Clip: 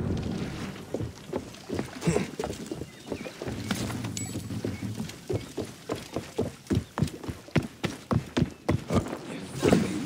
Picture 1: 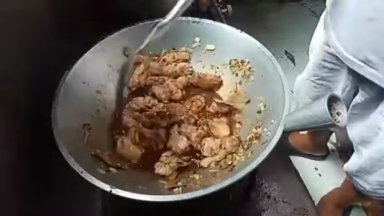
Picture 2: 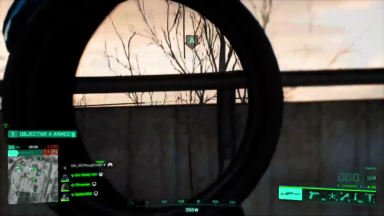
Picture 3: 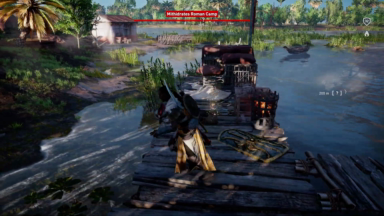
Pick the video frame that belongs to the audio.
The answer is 3